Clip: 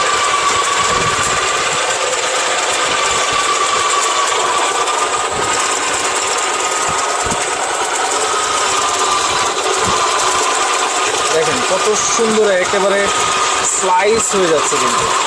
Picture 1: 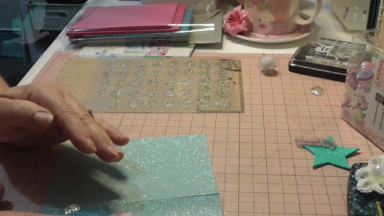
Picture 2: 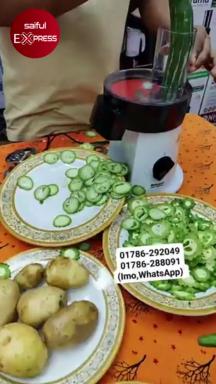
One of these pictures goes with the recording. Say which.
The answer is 2